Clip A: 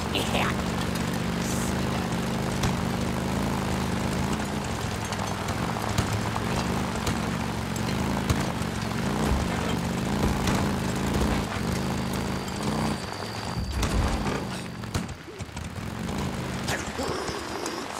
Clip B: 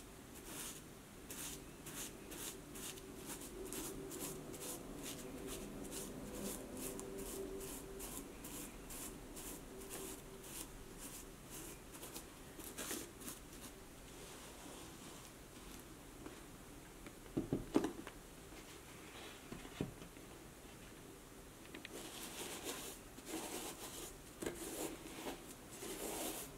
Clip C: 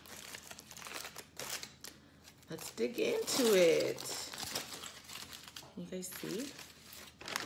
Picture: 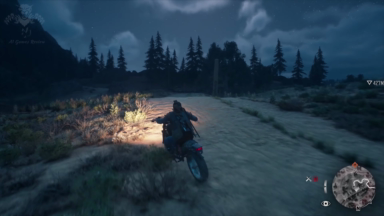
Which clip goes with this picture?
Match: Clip A